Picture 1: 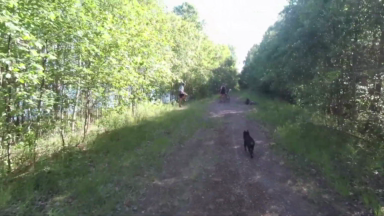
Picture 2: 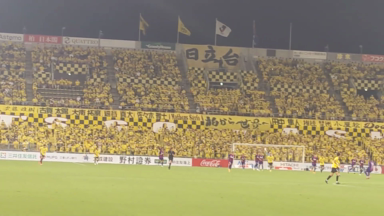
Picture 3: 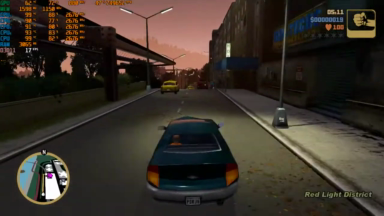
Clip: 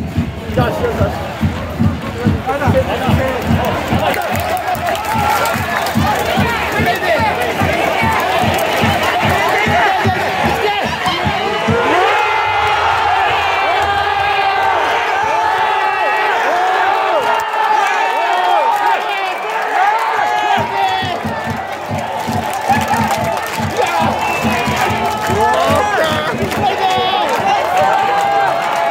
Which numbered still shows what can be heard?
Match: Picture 2